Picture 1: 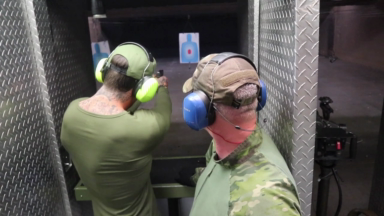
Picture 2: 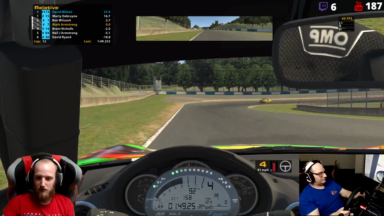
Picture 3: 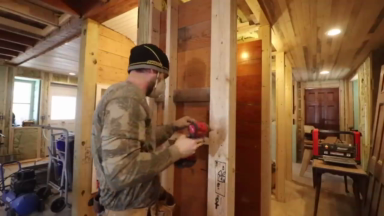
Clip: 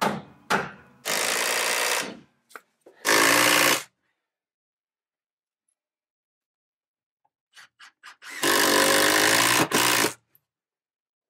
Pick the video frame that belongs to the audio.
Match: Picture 3